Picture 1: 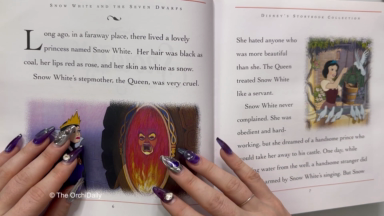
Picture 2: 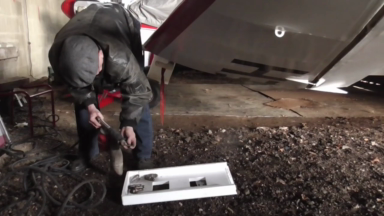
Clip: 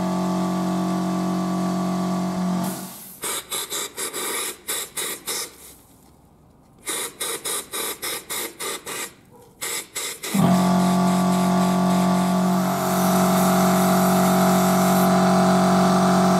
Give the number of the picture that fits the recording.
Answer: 2